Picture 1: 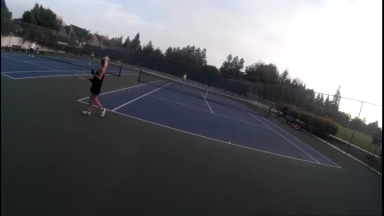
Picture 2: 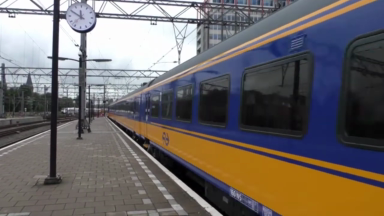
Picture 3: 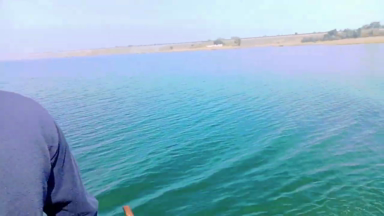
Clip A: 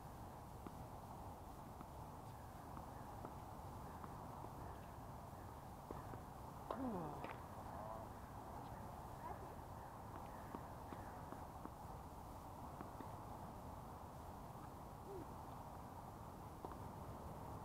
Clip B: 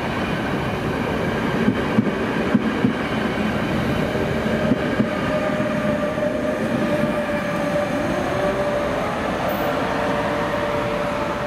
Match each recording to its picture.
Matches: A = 1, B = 2